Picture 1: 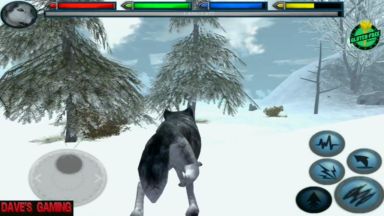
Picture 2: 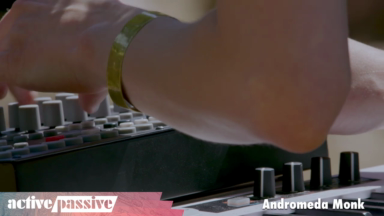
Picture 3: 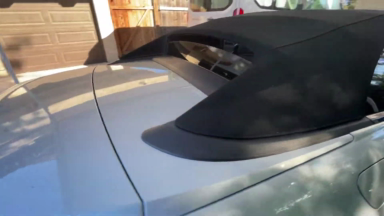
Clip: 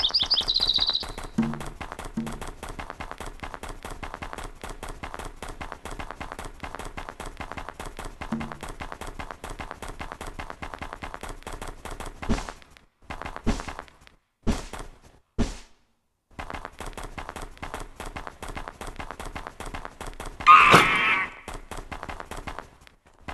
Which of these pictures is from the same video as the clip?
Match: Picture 1